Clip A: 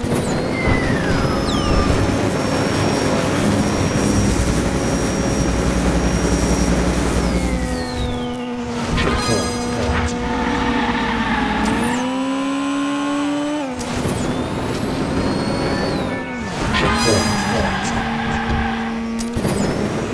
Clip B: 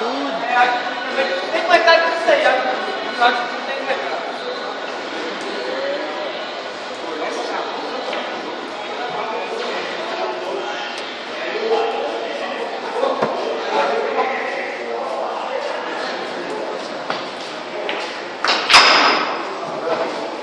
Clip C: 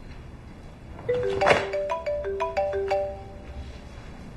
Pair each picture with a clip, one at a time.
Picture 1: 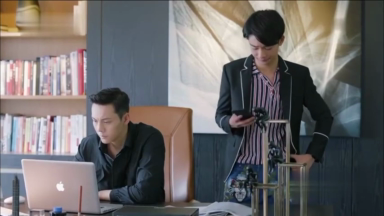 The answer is C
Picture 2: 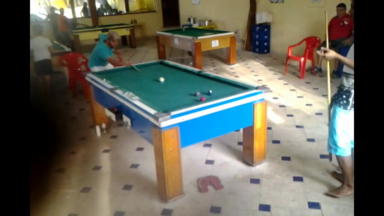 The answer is B